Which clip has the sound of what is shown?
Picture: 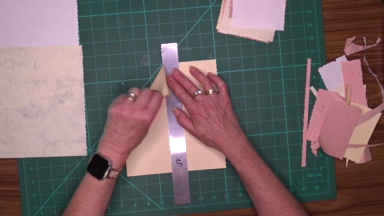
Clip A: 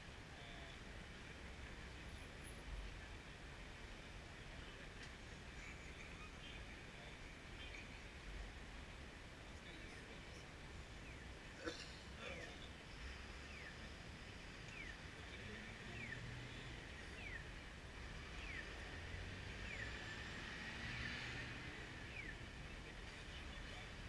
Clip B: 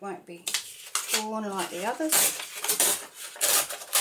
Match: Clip B